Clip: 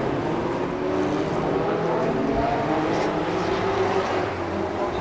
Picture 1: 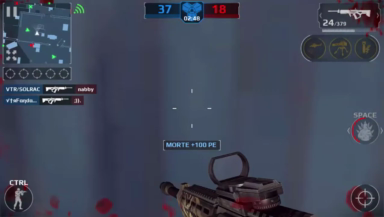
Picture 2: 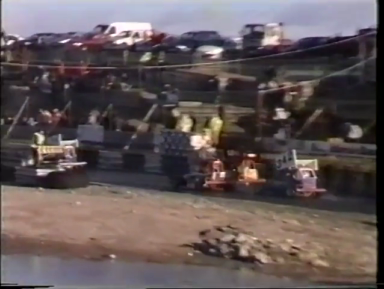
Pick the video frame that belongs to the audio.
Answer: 2